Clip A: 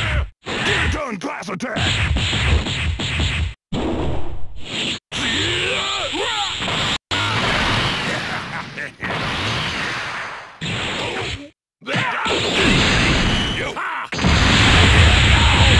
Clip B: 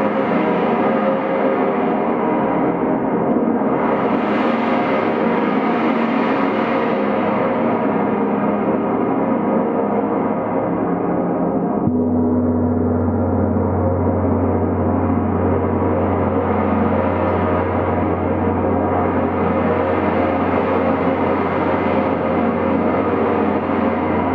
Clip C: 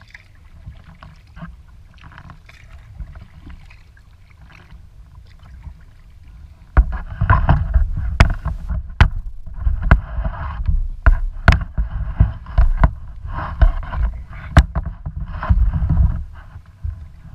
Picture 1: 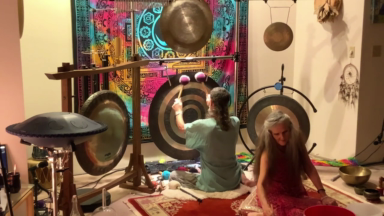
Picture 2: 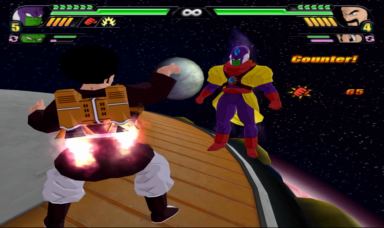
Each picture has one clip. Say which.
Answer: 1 B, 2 A